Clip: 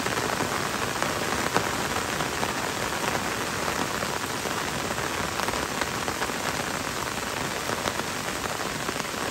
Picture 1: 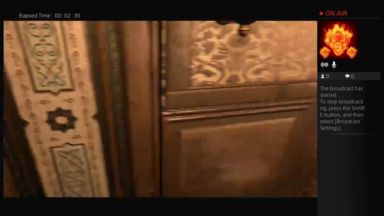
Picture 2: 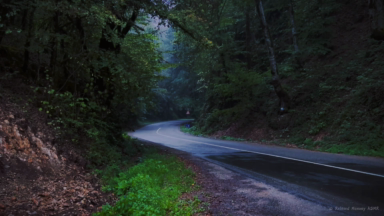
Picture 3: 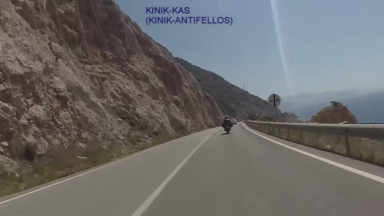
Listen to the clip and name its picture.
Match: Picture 2